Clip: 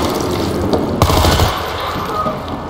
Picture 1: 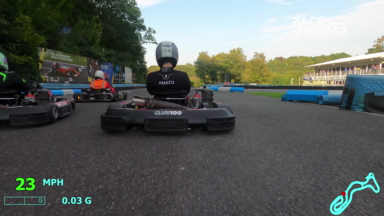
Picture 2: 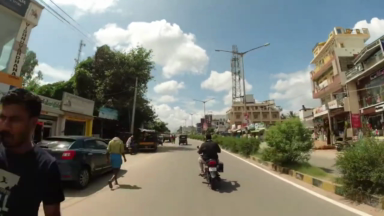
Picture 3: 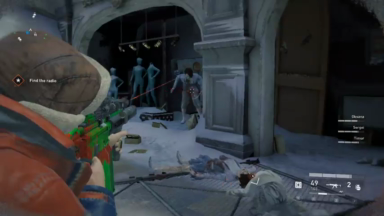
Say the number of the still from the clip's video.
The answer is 3